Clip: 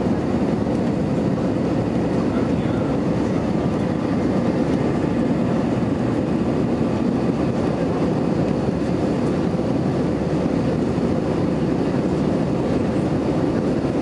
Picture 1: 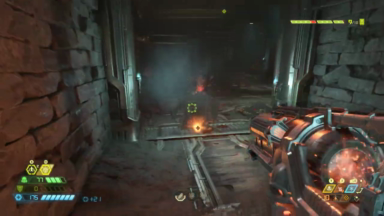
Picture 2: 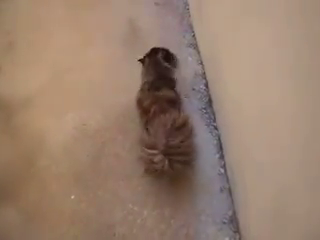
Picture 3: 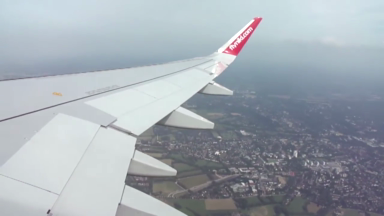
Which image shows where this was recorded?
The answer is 3